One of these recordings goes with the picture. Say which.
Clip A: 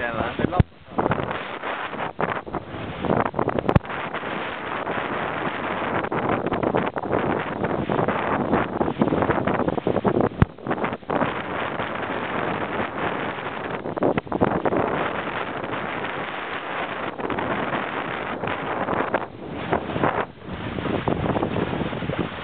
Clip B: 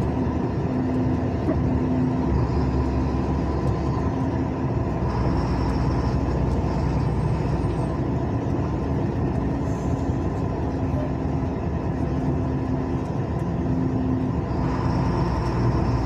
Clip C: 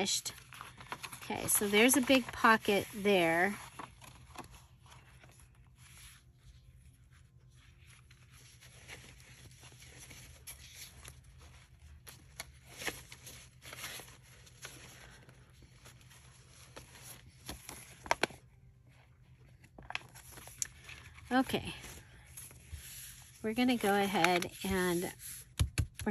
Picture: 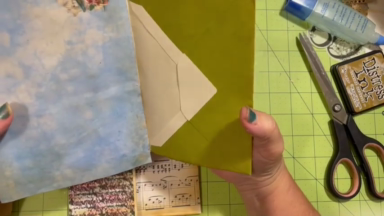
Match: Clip C